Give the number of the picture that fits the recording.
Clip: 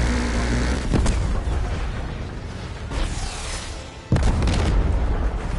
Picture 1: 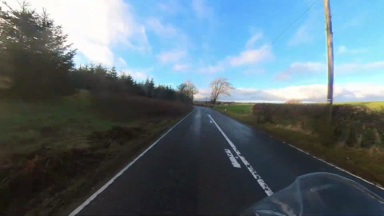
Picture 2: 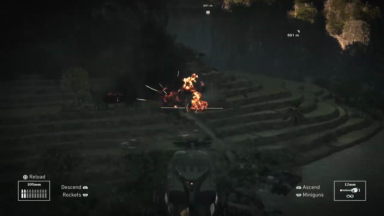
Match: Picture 2